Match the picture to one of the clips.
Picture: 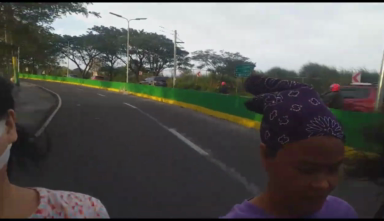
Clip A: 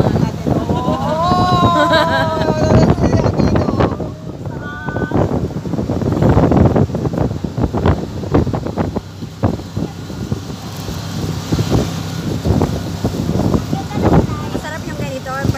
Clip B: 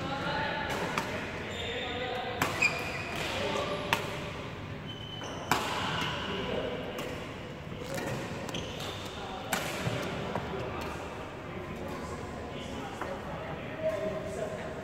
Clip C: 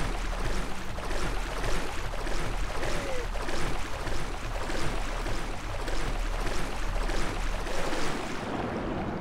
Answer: A